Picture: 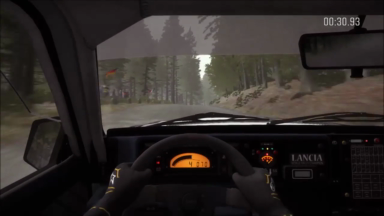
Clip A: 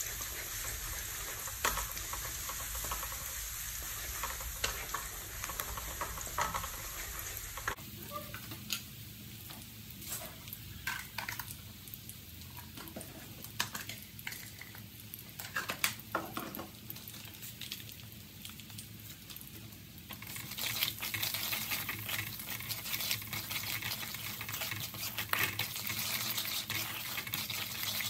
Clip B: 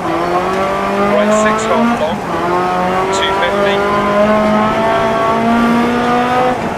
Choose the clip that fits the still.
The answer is B